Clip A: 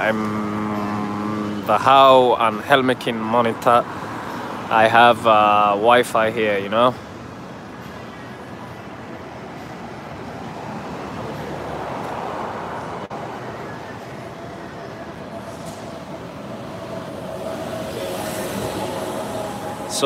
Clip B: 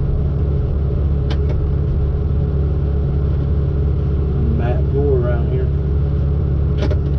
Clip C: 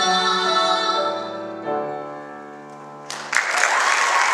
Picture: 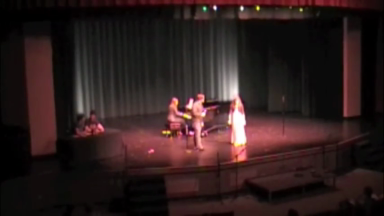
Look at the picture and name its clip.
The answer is C